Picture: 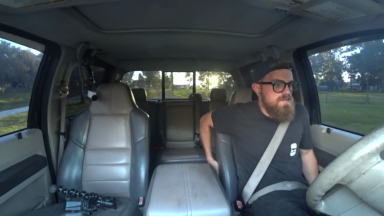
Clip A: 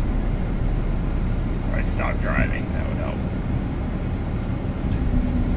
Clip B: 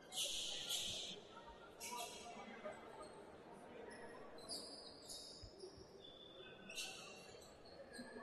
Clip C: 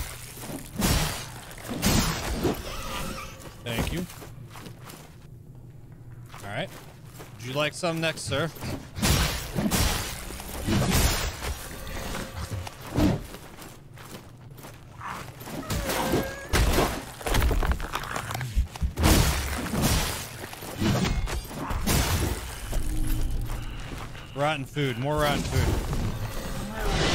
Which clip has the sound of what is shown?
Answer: A